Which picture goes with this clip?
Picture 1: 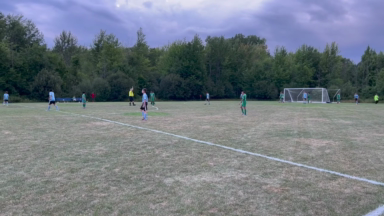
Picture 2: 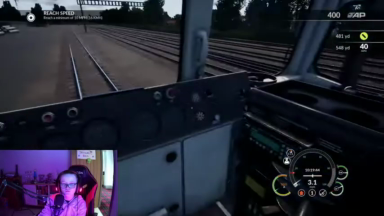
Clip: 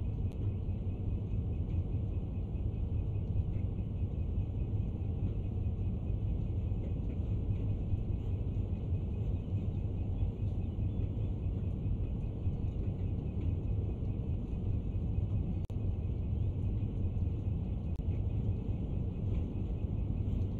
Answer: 2